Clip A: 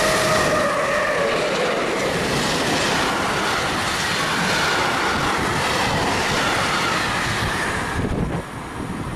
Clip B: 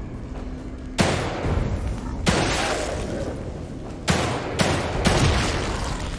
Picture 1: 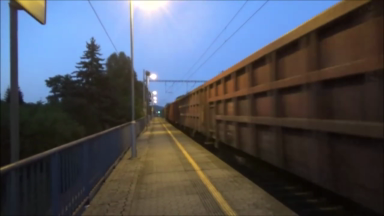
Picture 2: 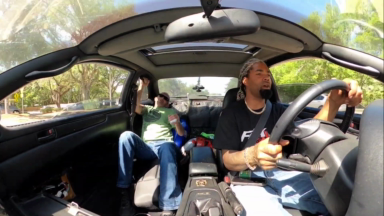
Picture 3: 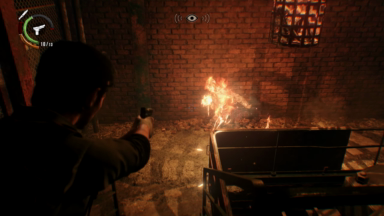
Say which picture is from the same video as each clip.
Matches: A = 1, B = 3